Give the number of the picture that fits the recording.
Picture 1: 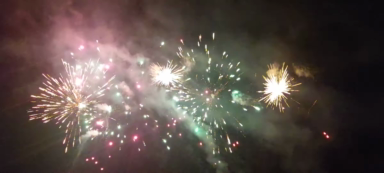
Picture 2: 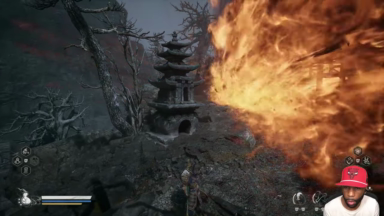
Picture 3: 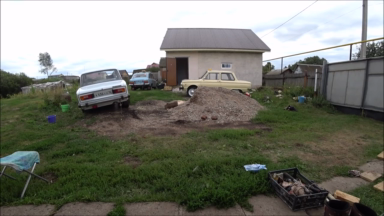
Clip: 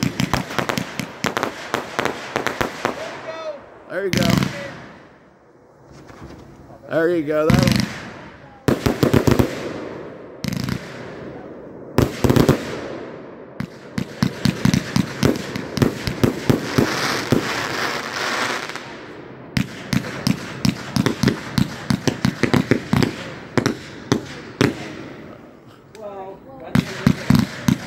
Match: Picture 1